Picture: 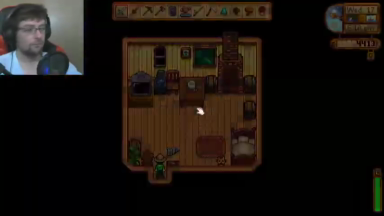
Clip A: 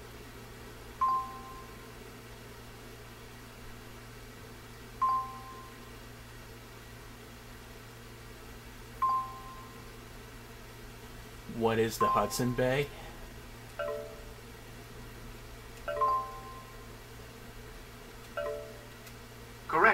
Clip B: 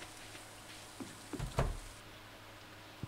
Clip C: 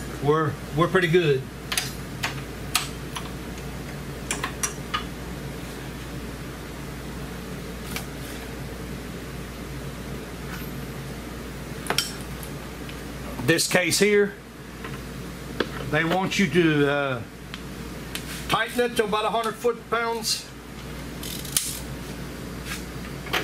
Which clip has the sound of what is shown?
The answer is B